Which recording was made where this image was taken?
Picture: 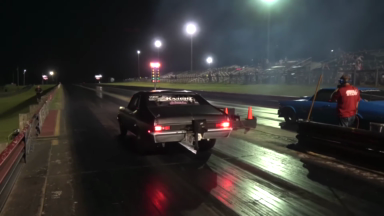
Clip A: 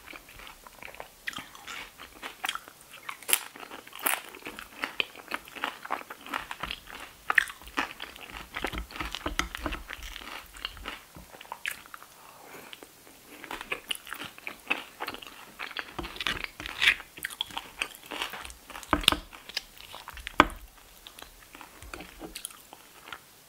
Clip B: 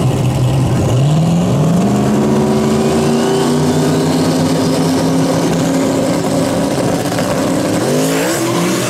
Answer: B